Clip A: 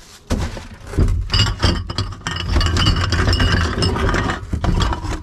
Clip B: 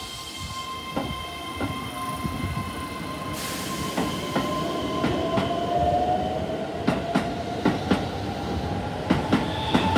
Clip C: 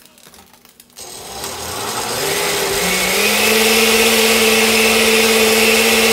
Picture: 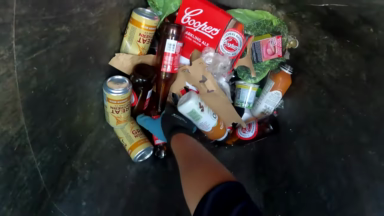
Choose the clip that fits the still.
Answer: A